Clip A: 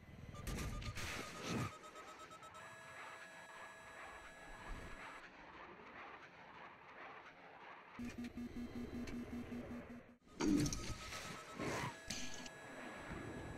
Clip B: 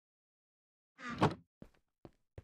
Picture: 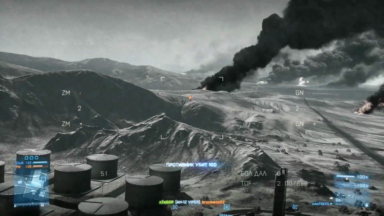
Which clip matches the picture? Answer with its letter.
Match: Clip A